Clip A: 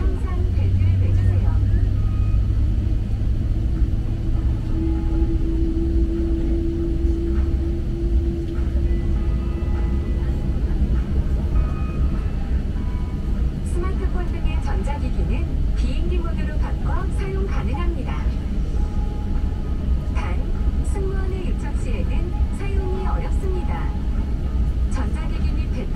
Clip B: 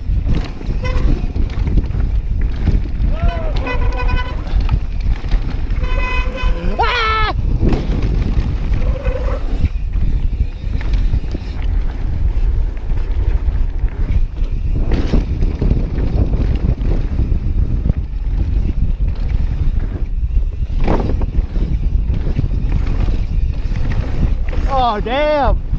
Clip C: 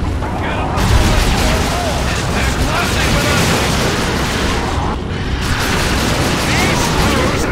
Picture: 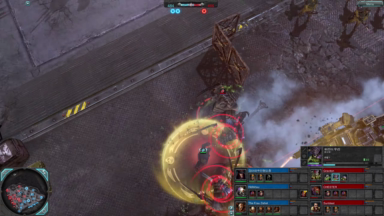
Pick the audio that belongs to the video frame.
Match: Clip C